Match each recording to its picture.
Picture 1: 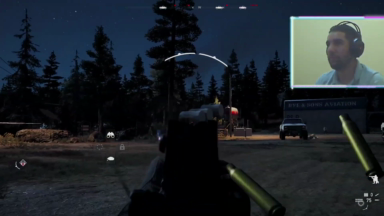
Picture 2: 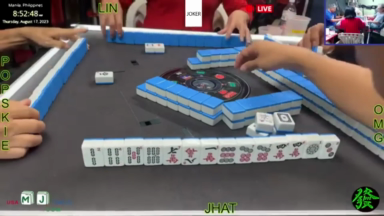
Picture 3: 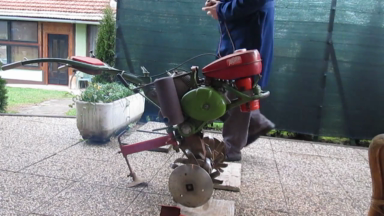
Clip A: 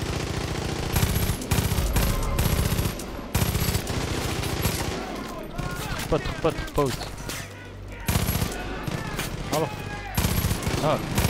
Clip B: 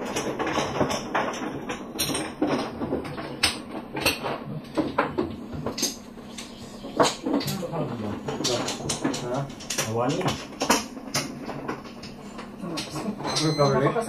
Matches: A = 1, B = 2